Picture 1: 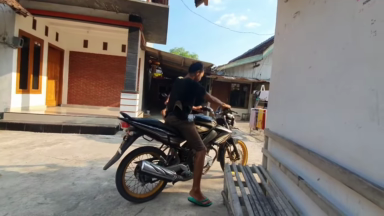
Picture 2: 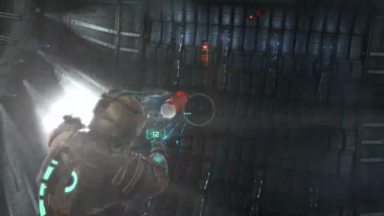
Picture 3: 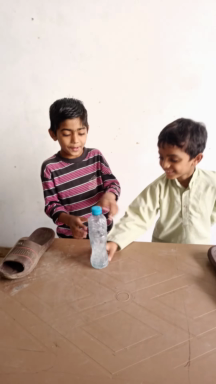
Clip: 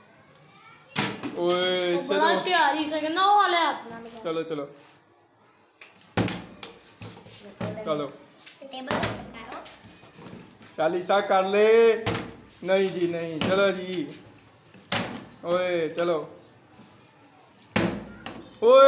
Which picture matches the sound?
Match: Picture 3